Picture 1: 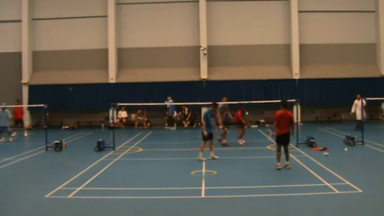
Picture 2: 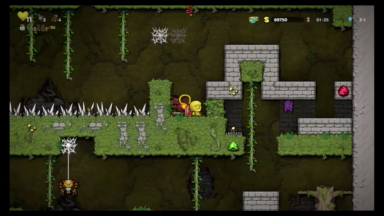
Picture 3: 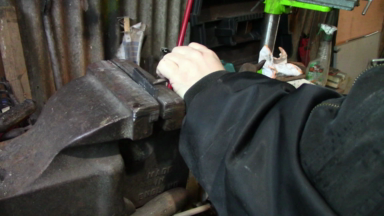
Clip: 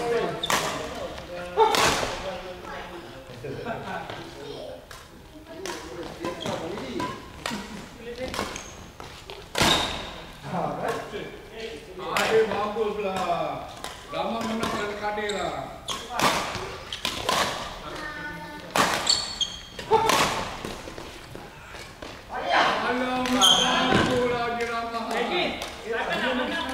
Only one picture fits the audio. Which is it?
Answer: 1